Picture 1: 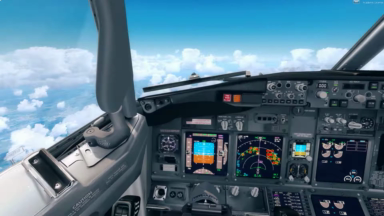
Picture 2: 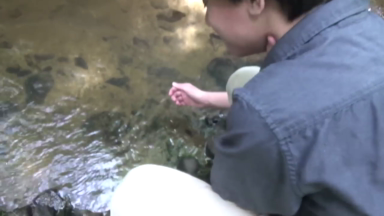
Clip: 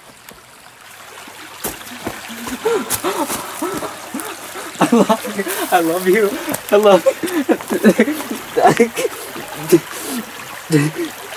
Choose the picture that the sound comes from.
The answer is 2